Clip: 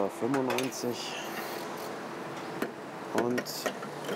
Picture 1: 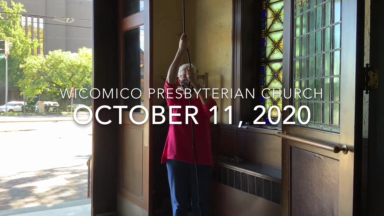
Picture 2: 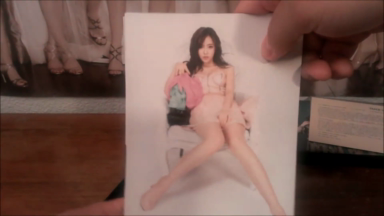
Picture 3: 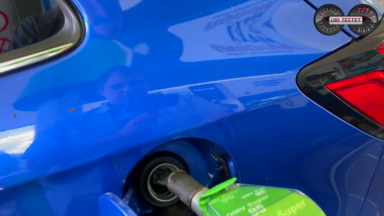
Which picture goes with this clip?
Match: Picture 3